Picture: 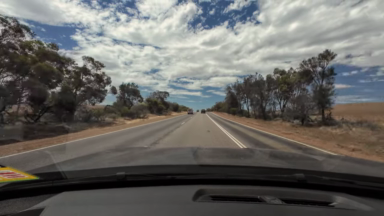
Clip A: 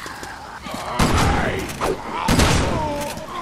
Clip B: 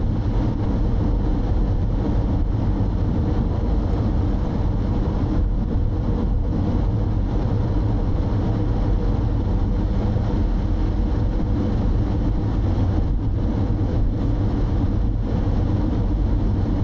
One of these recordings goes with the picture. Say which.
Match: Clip B